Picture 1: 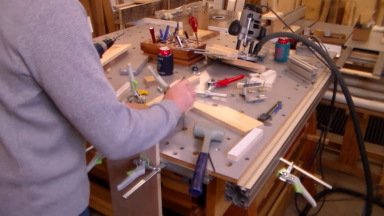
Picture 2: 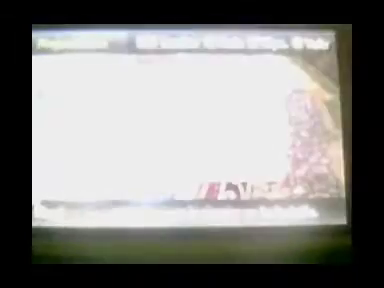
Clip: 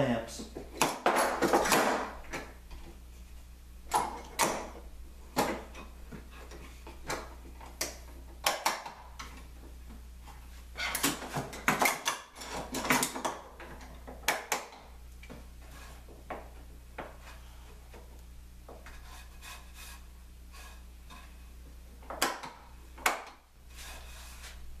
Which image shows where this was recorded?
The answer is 1